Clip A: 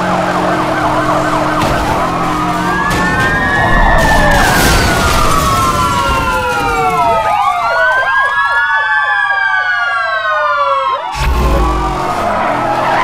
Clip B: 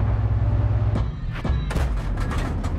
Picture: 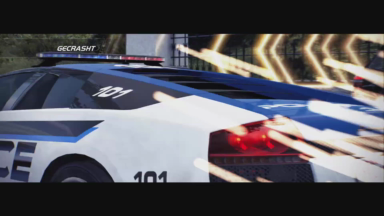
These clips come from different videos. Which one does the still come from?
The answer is A